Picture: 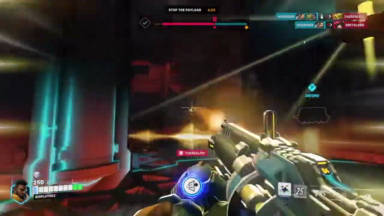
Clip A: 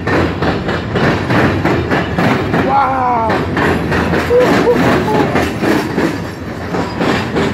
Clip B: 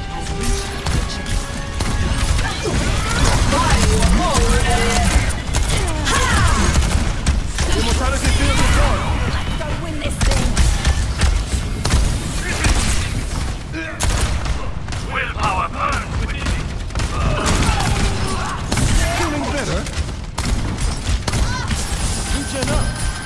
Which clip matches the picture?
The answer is B